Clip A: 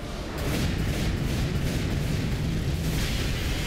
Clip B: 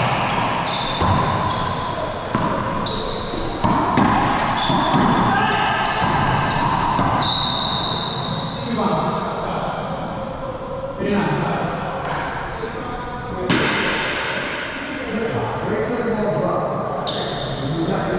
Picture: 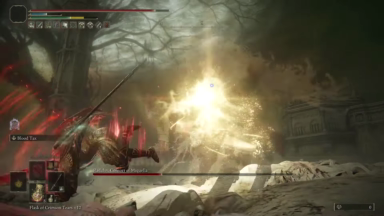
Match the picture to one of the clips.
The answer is A